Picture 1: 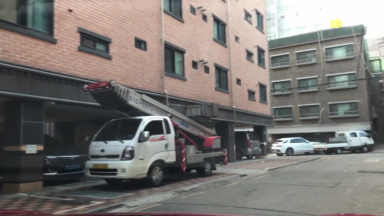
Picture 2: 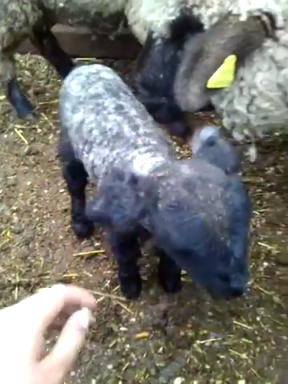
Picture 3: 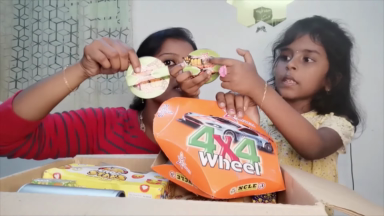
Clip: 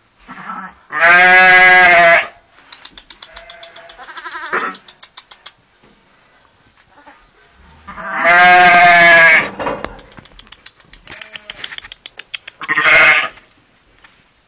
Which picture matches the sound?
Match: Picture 2